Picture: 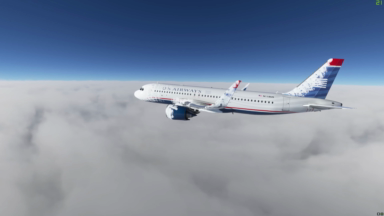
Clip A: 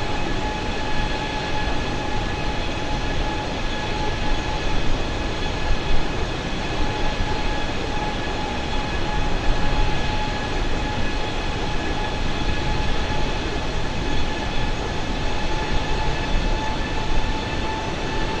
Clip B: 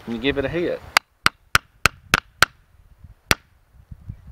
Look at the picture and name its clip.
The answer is A